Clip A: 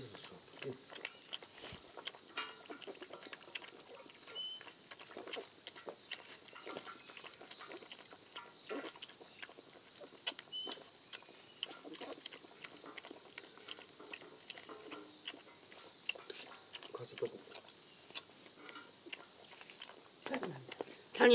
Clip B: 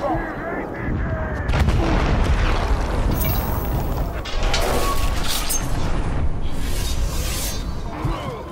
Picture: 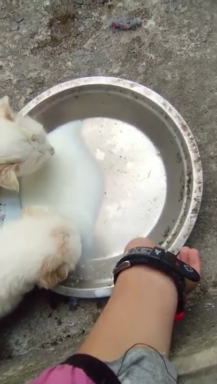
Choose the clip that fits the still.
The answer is A